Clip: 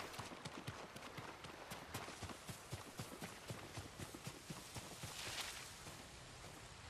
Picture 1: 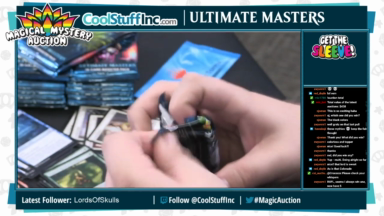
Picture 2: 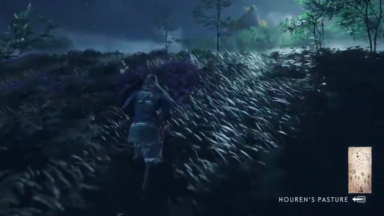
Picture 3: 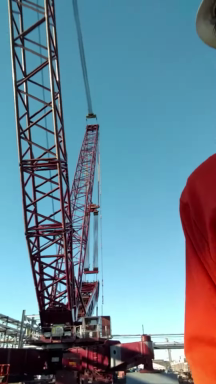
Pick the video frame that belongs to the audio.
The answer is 2